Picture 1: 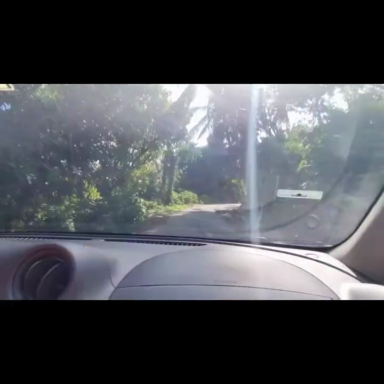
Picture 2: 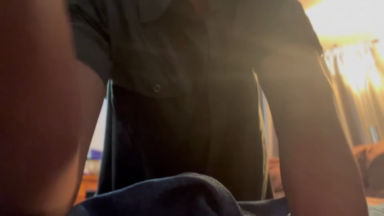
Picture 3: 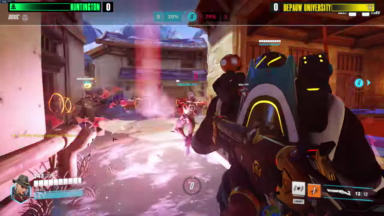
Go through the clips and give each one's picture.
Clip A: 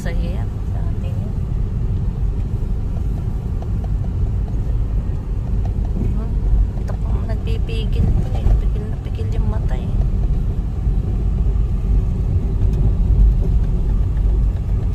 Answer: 1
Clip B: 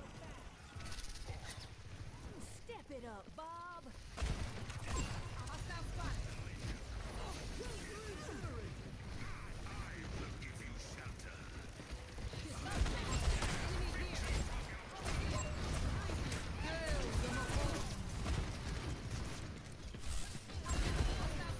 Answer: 3